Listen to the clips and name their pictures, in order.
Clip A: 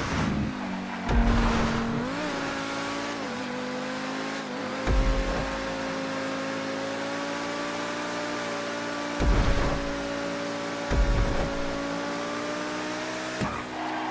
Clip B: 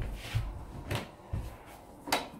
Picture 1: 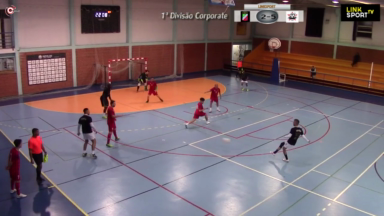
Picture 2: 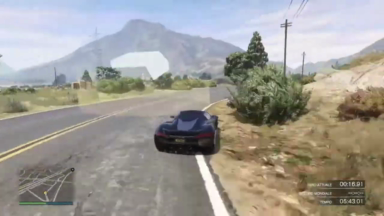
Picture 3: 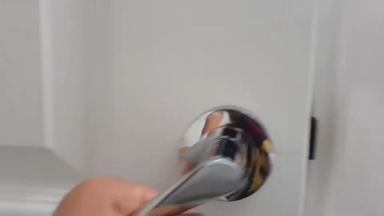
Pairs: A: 2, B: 3